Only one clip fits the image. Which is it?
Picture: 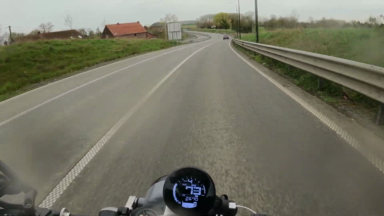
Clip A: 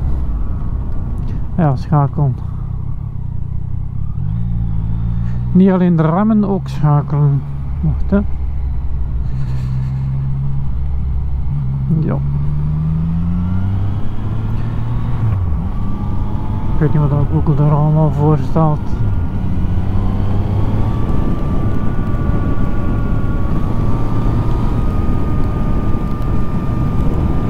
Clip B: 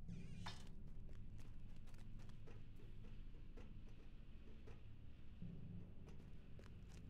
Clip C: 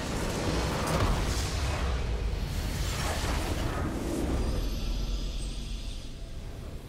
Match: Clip A